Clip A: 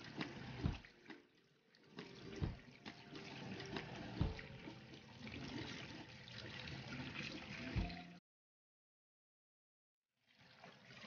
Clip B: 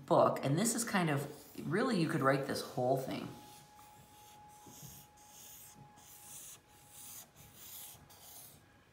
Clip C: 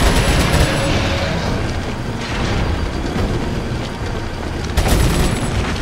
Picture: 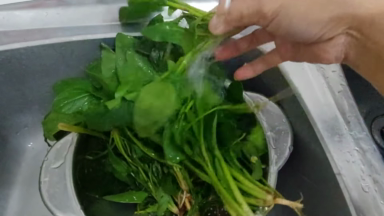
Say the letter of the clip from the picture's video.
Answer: A